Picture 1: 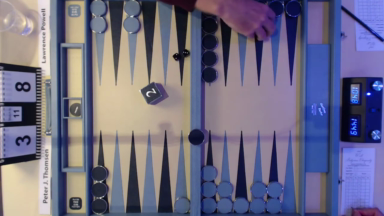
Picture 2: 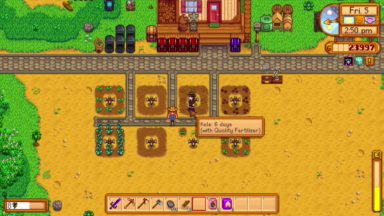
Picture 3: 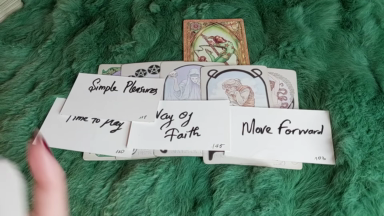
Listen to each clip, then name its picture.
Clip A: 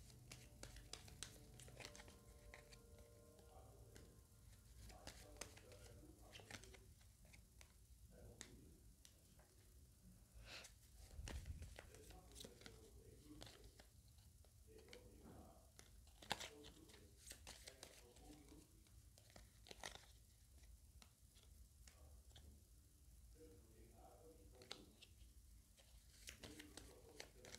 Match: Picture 3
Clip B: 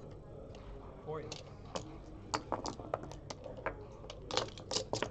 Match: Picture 1